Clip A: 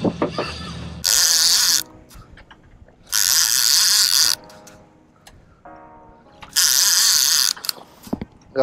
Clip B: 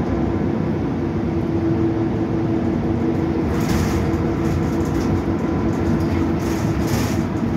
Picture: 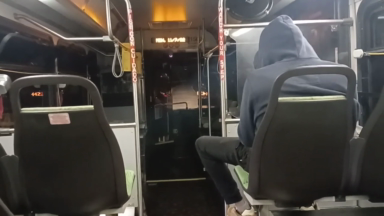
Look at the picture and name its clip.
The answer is B